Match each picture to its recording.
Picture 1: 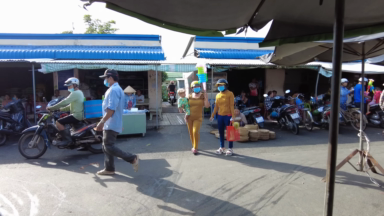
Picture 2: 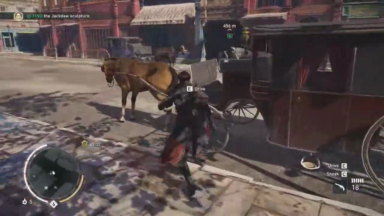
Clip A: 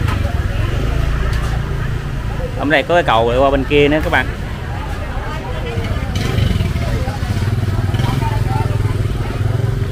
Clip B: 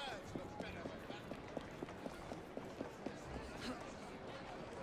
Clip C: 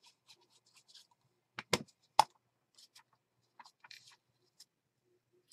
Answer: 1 A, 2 B